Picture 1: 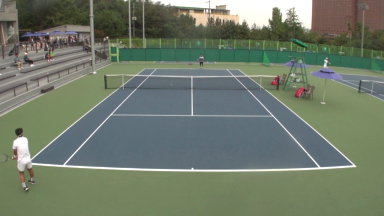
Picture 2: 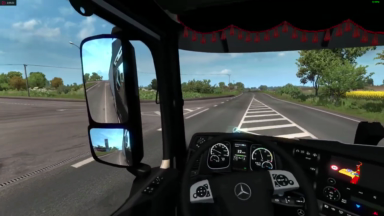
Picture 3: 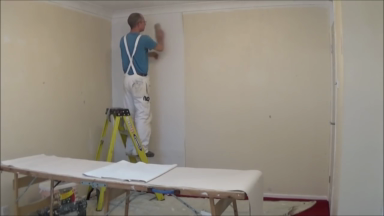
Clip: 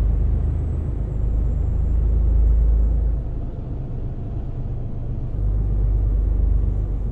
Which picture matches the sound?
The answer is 2